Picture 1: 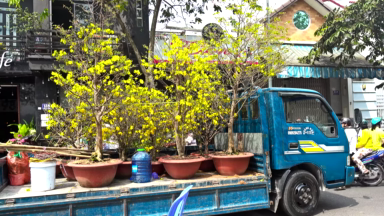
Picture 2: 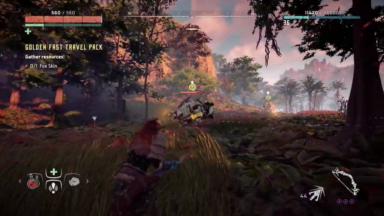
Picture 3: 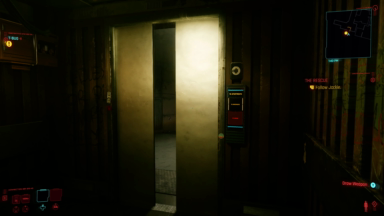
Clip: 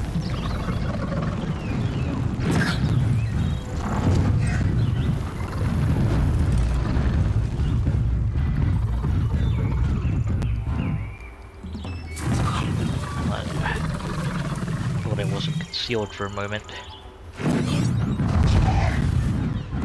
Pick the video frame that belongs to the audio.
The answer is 2